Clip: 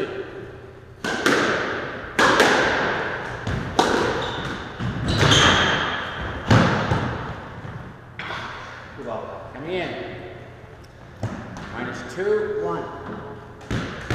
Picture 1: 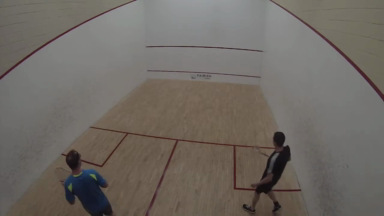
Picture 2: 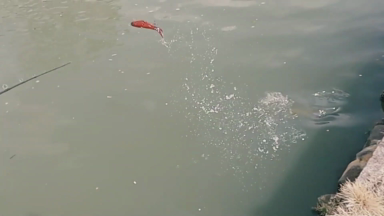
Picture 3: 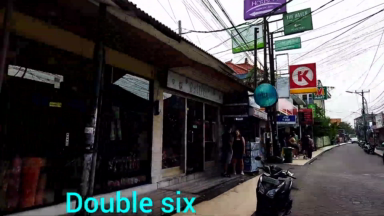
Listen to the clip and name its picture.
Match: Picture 1